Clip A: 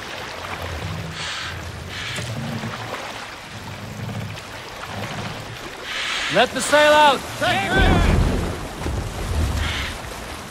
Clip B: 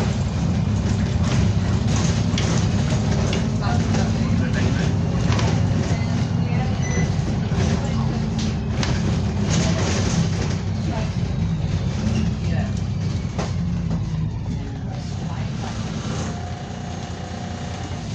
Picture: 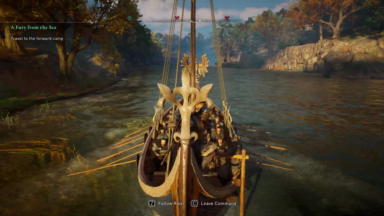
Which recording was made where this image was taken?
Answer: A